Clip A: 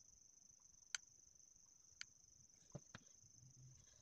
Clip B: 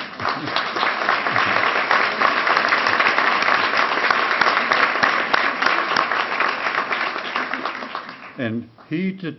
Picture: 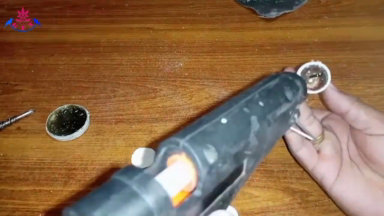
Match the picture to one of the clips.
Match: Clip A